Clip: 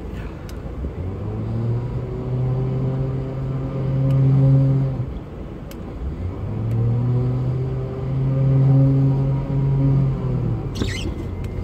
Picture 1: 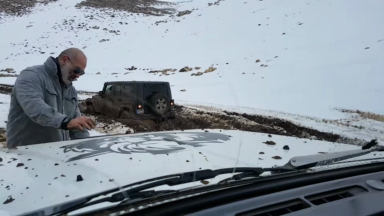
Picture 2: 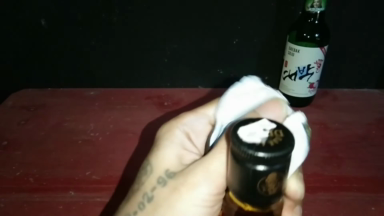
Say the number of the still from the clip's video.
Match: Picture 1